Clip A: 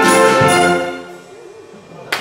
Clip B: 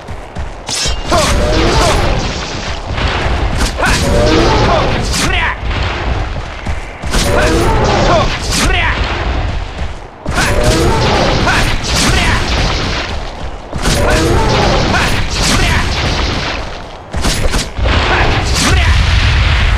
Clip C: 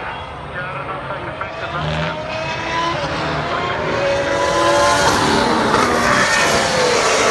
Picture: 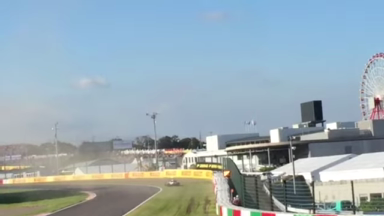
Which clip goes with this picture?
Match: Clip C